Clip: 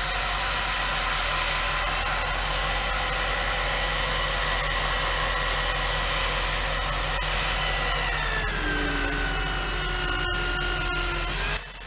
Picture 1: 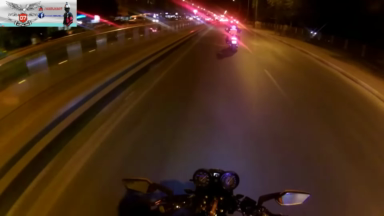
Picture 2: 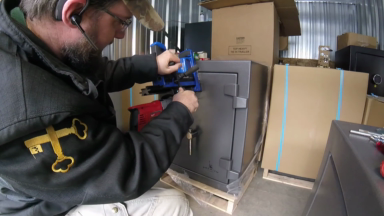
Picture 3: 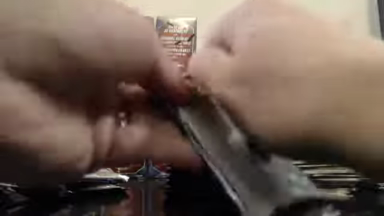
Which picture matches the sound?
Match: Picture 2